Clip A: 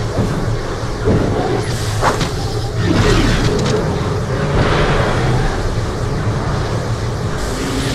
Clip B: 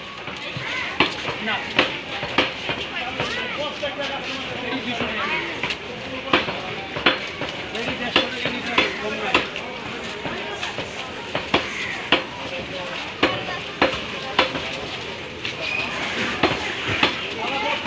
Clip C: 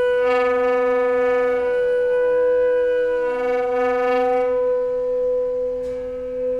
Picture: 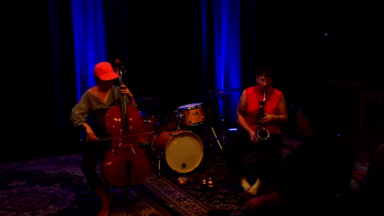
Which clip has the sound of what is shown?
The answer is C